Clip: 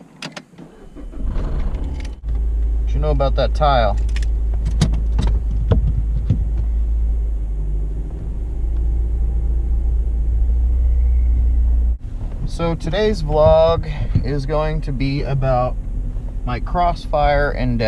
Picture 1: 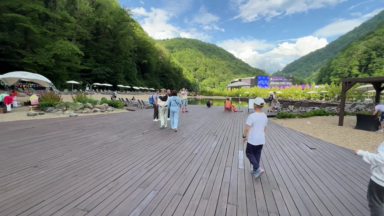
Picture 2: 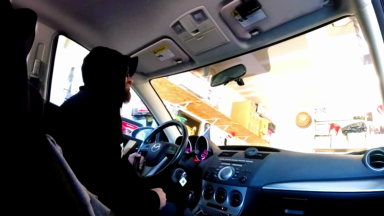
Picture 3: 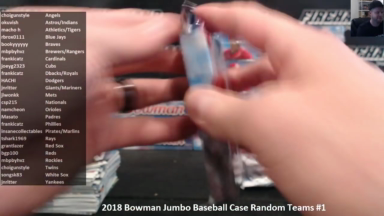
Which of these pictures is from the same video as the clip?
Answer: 2